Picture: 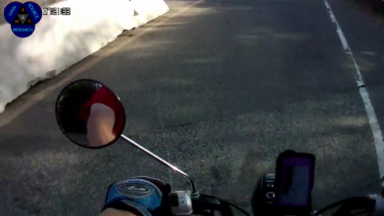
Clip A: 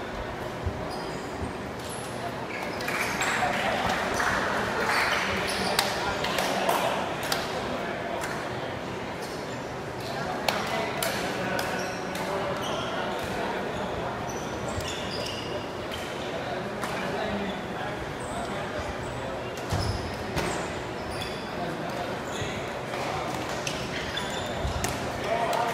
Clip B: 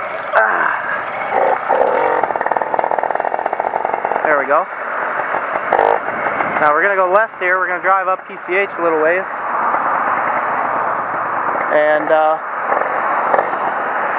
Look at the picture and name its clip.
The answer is B